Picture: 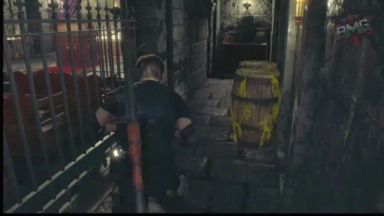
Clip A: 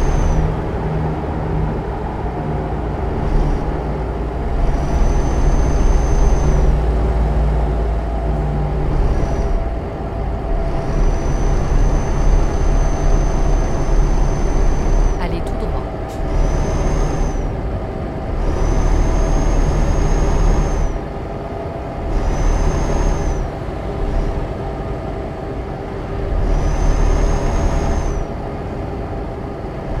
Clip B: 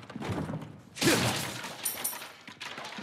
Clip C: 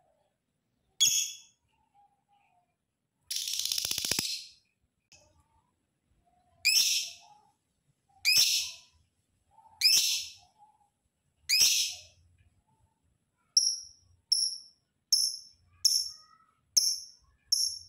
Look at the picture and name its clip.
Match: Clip B